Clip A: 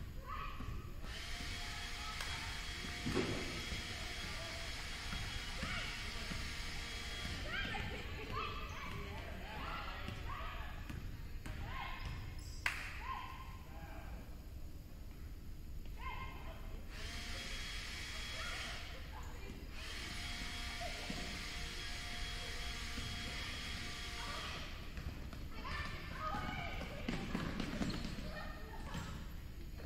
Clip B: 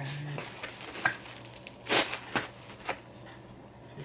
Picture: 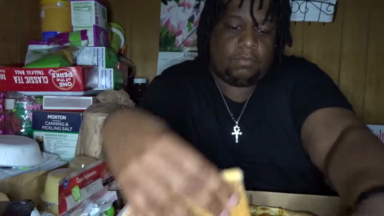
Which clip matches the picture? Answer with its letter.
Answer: B